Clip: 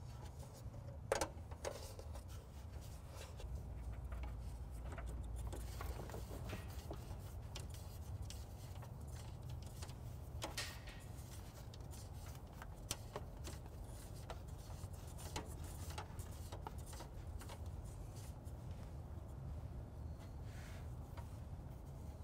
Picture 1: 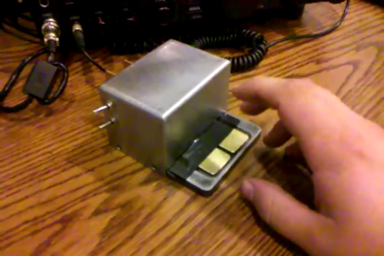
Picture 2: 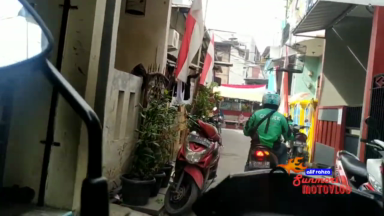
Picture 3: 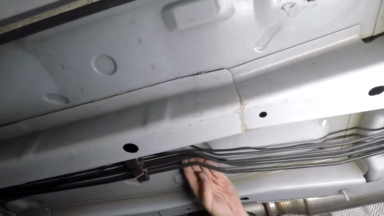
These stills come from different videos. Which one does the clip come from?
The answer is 3